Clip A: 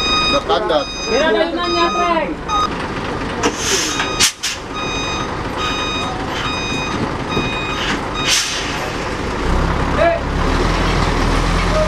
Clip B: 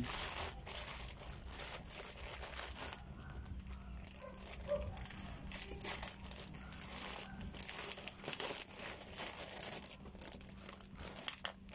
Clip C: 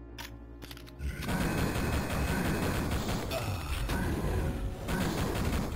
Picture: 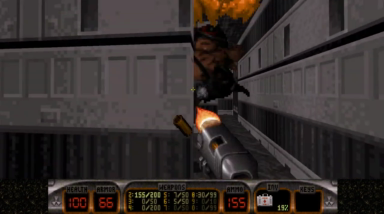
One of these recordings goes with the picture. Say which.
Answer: C